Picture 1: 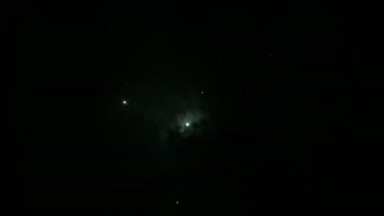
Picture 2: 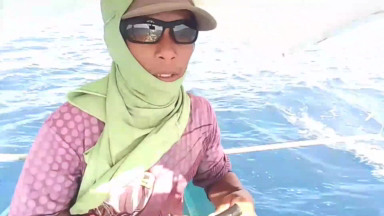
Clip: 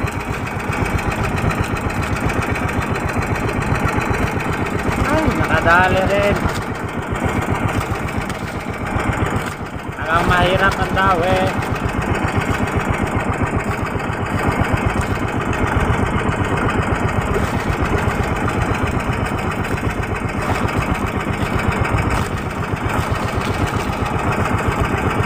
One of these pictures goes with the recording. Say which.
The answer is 2